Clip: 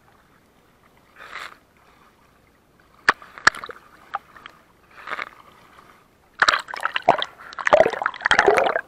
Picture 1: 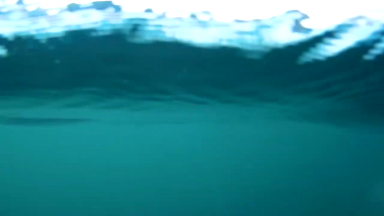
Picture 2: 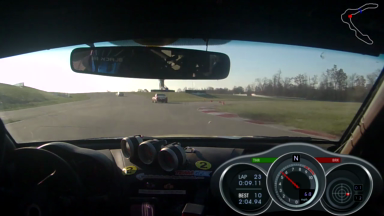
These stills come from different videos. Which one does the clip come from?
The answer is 1